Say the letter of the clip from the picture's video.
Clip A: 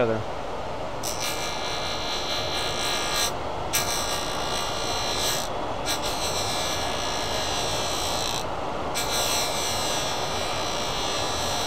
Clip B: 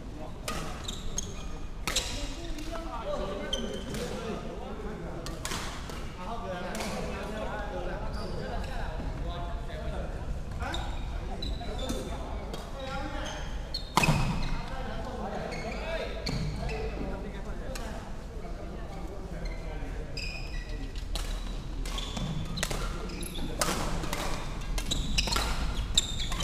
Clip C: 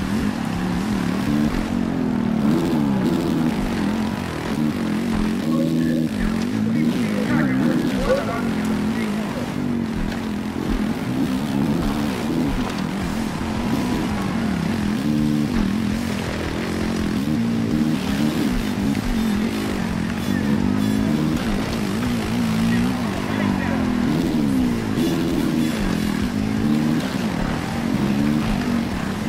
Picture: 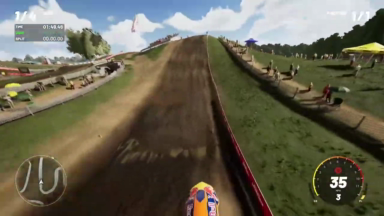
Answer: C